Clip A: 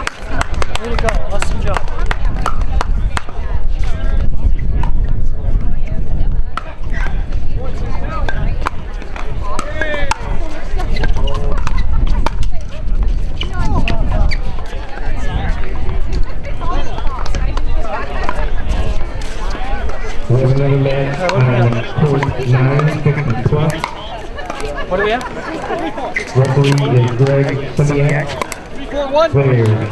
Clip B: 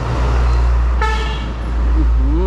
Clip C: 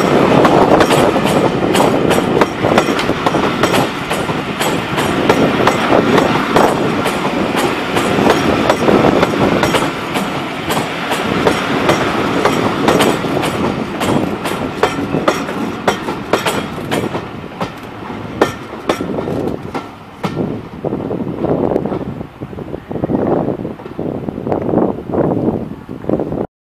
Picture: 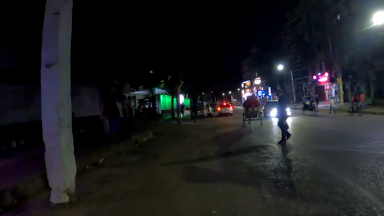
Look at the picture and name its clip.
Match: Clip B